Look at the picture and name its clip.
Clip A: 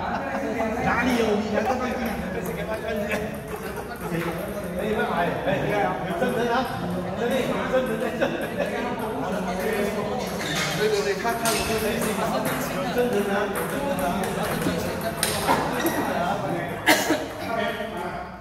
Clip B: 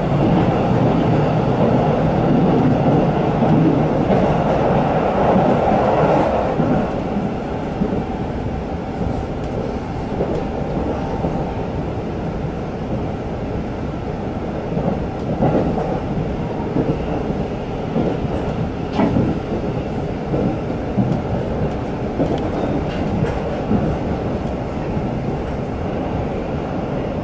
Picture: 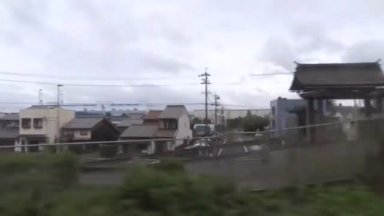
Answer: B